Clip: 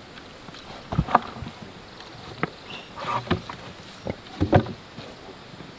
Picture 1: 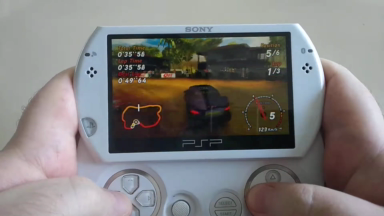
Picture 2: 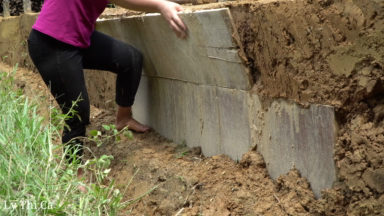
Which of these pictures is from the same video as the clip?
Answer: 2